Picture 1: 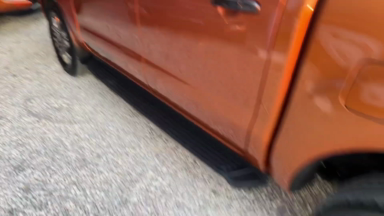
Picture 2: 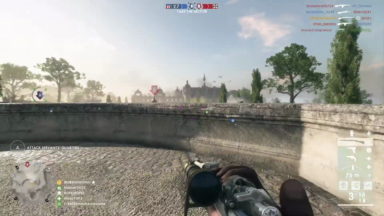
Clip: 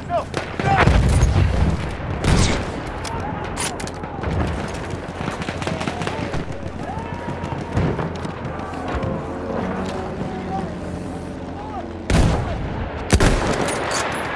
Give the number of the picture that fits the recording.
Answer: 2